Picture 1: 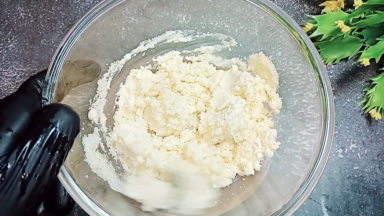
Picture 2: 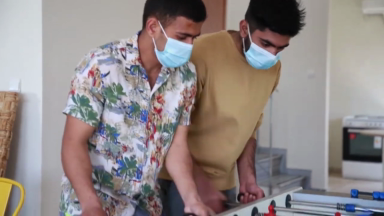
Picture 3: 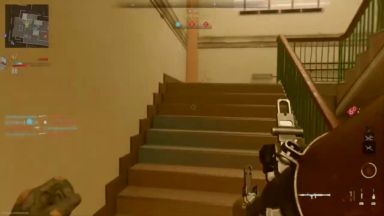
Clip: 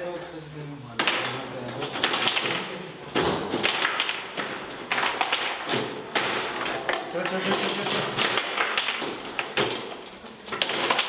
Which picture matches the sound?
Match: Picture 2